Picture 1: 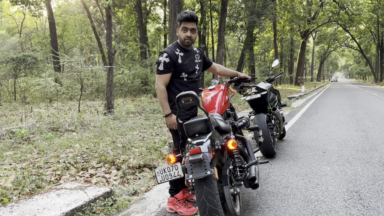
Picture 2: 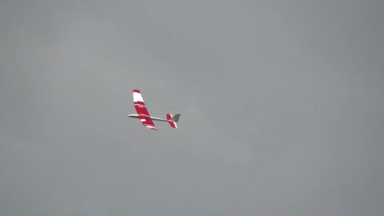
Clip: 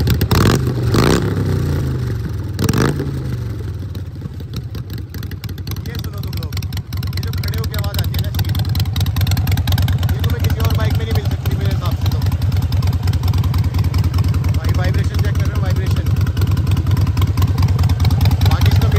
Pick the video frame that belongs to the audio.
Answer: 1